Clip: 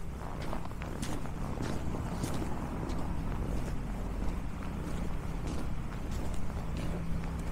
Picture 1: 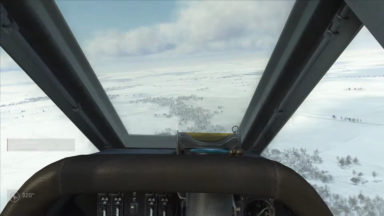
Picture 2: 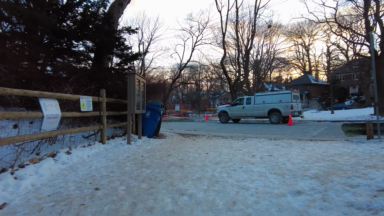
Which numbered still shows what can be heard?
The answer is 2